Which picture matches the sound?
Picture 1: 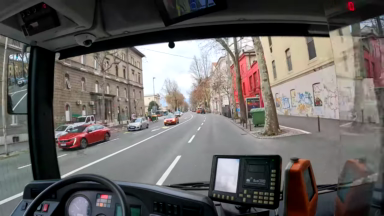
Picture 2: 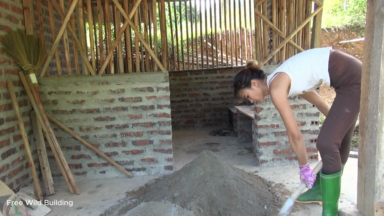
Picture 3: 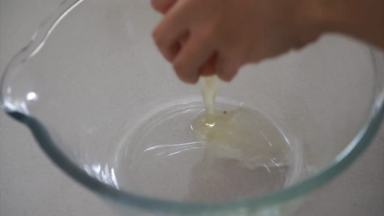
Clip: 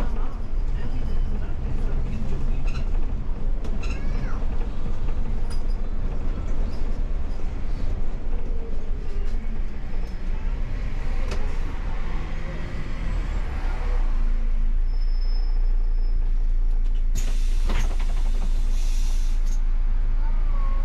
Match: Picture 1